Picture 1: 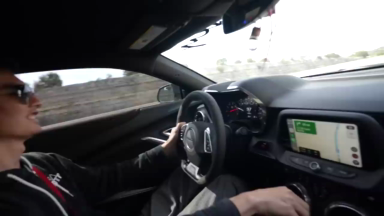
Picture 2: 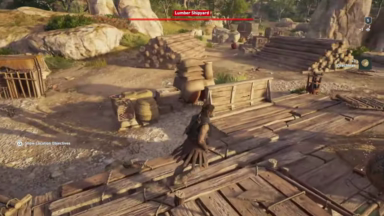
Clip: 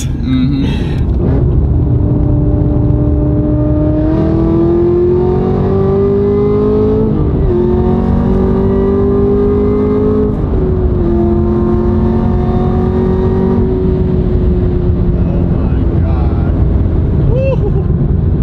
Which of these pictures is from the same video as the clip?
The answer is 1